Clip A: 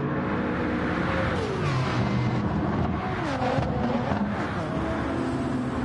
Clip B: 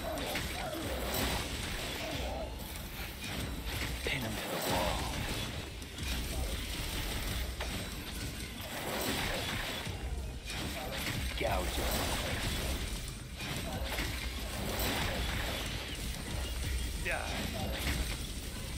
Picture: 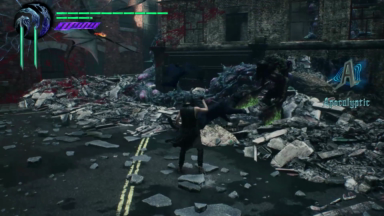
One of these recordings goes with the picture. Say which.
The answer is B